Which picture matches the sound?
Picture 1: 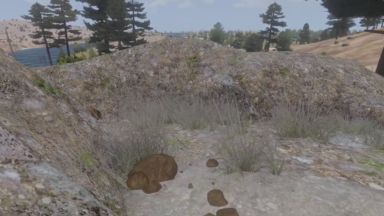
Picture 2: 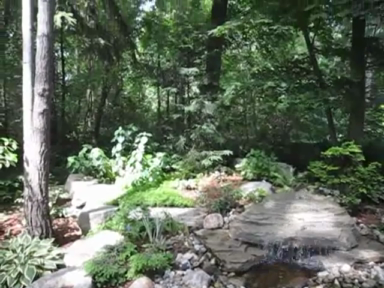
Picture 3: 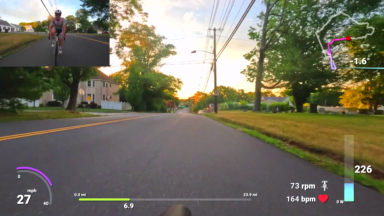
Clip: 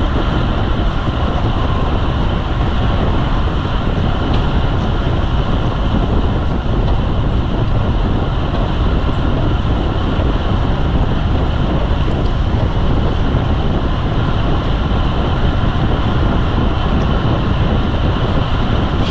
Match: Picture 3